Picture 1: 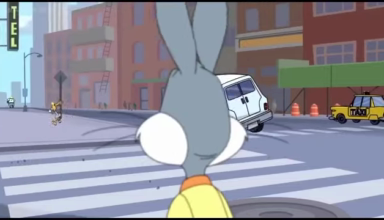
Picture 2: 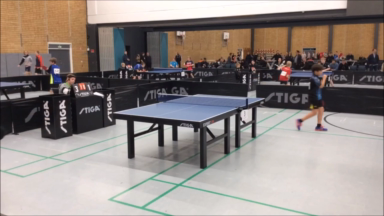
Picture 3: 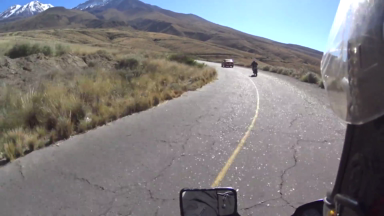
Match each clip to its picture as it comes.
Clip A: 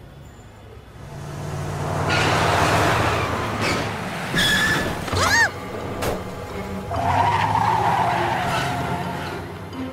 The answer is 1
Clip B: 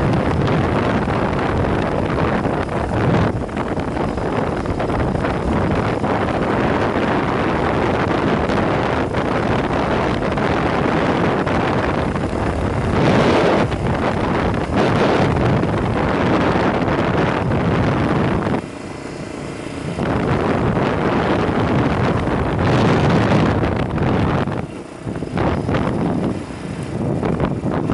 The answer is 3